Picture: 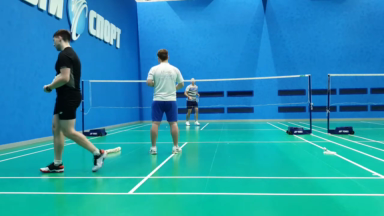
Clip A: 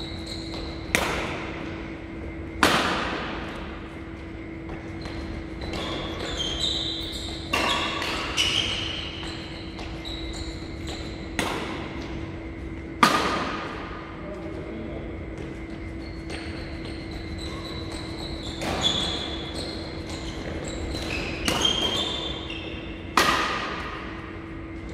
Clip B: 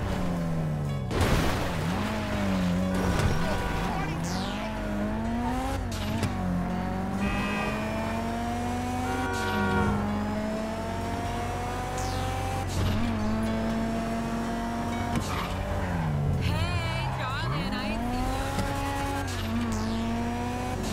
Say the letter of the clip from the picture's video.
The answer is A